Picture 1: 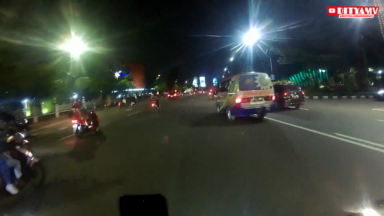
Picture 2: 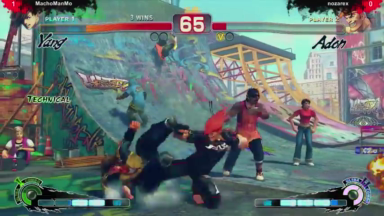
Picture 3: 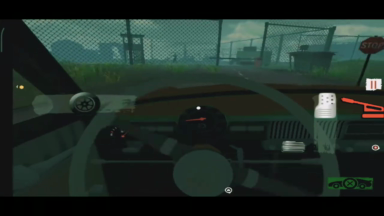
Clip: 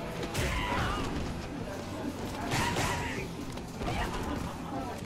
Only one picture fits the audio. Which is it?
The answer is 2